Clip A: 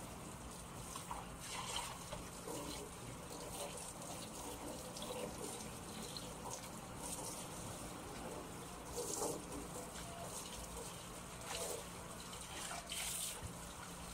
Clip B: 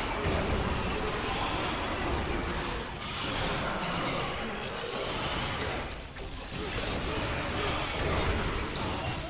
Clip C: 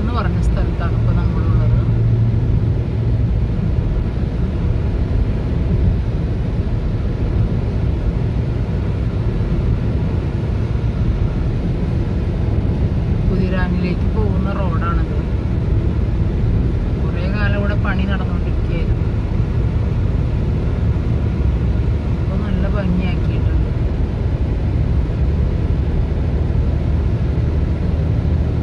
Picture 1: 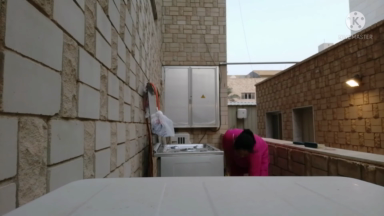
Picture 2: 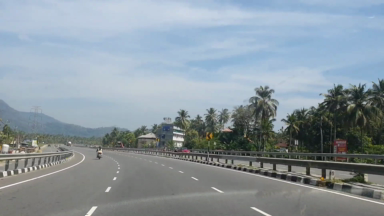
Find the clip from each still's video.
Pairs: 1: A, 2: C